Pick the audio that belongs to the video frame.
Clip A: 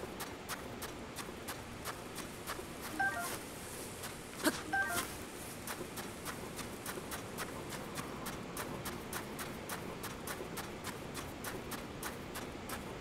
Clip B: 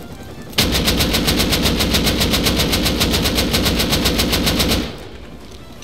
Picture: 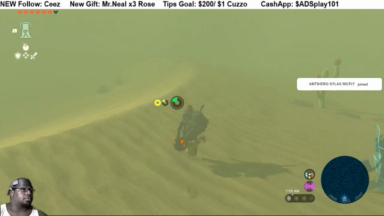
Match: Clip A